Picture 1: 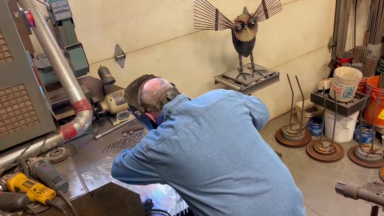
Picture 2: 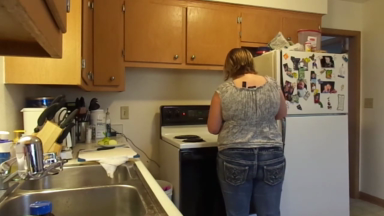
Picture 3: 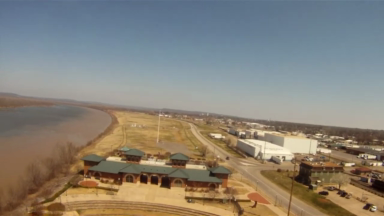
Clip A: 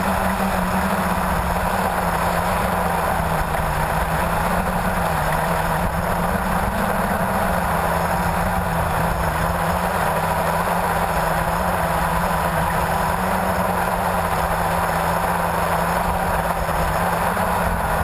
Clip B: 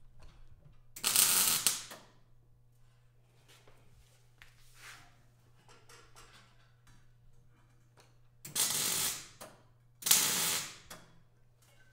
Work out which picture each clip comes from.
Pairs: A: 3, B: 1